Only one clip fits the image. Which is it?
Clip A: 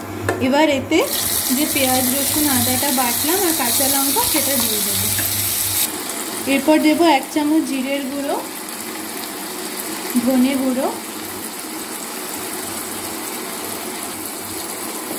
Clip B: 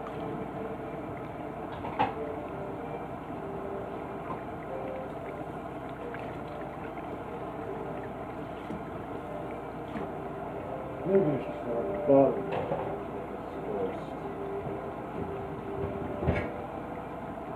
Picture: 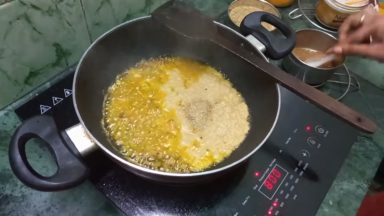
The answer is A